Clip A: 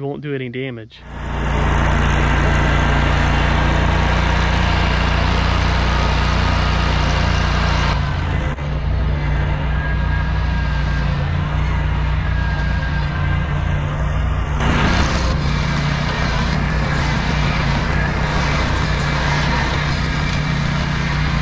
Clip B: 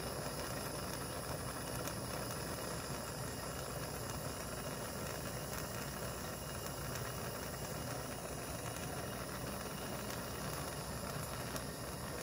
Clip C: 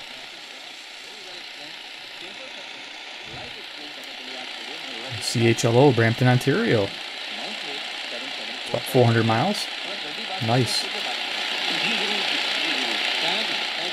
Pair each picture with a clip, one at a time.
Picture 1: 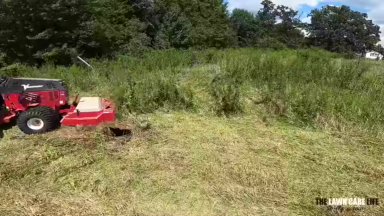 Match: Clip A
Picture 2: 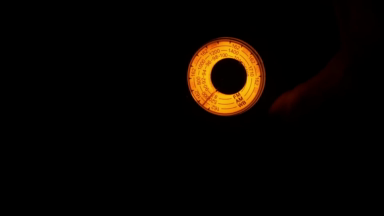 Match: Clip C